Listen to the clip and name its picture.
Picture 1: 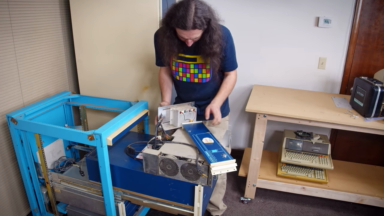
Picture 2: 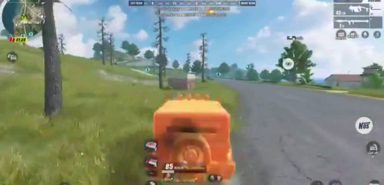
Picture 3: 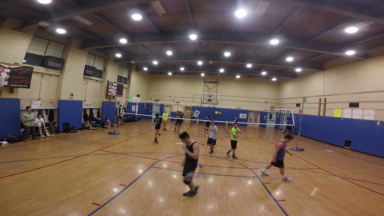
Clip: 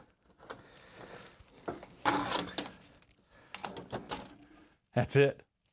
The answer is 1